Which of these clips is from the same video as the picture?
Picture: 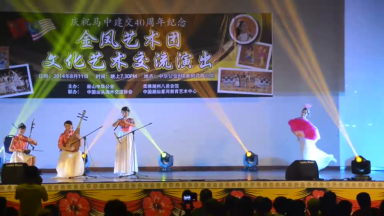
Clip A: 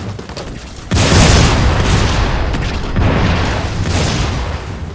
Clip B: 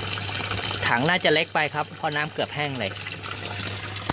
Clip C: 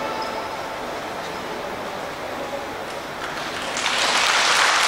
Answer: C